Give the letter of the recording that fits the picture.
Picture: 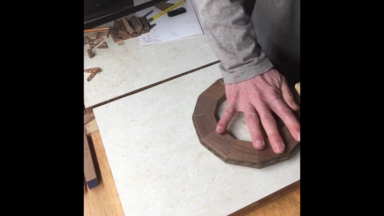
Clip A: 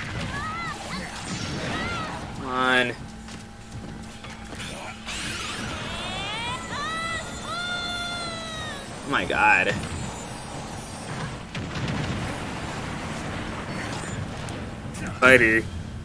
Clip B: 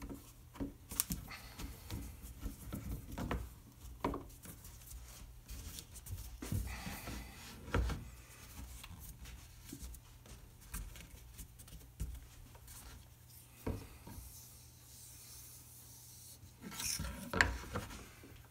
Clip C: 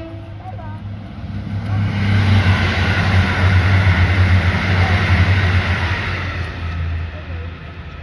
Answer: B